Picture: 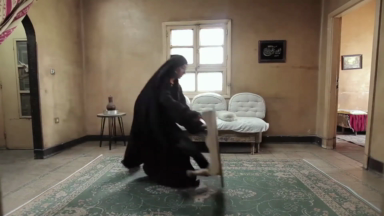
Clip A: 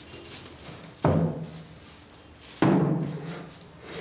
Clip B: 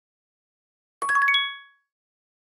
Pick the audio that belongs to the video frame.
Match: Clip A